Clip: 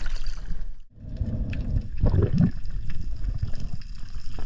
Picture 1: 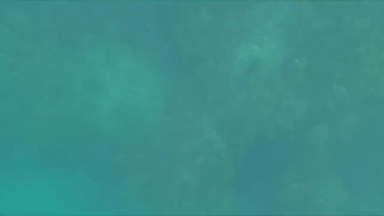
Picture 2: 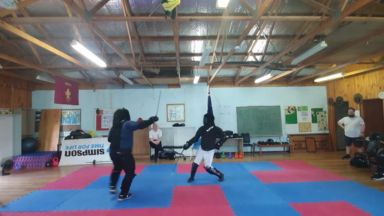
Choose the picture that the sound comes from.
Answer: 1